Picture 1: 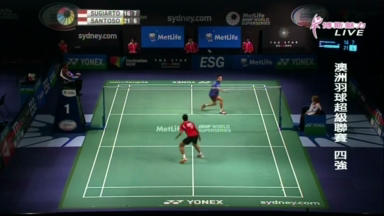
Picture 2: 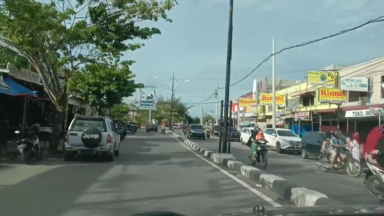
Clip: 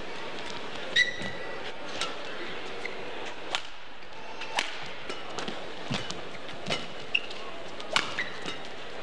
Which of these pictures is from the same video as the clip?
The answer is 1